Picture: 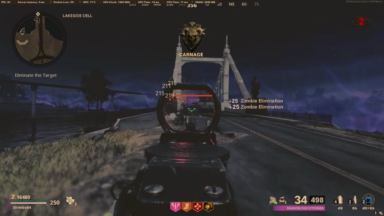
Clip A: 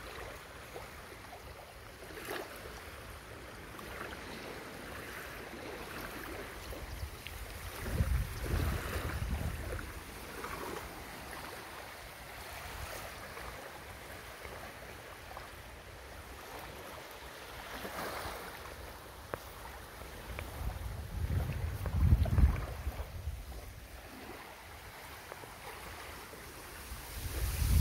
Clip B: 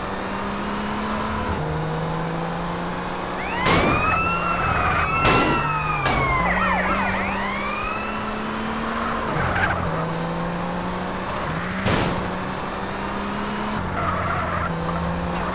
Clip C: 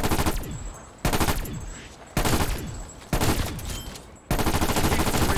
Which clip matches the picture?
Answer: C